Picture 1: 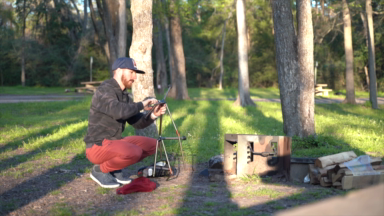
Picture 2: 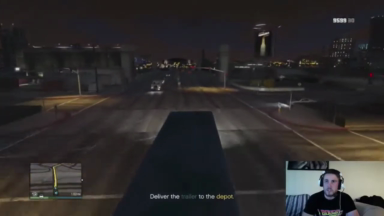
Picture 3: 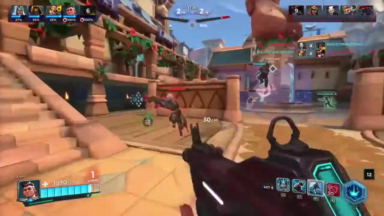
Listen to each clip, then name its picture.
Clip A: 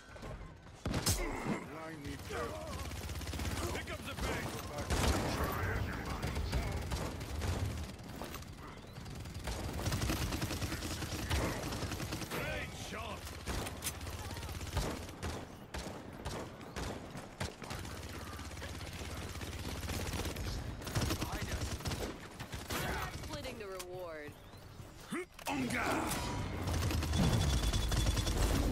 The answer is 3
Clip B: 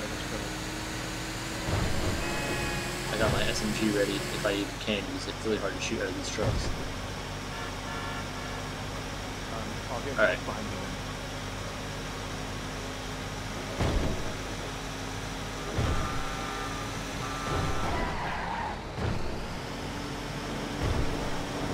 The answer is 2